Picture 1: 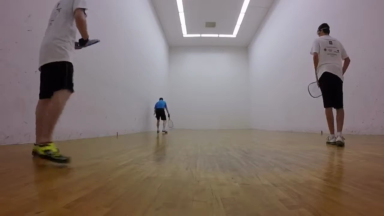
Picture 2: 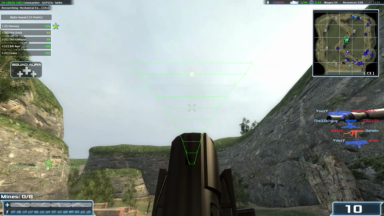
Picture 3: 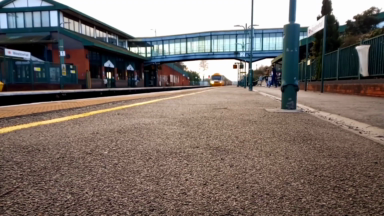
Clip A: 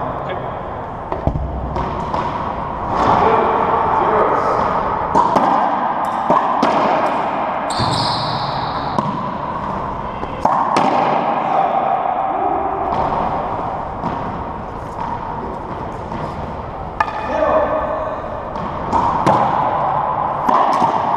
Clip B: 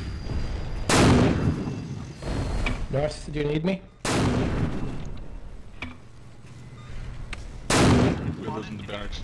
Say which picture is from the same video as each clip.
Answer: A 1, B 2